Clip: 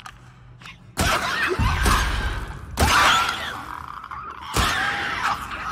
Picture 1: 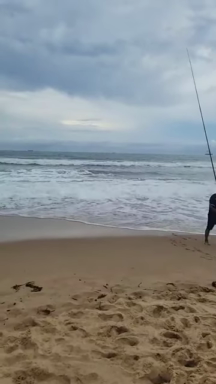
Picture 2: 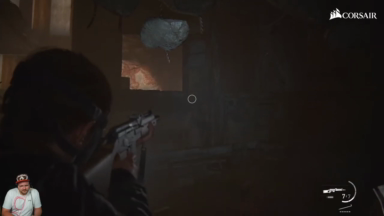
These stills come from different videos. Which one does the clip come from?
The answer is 2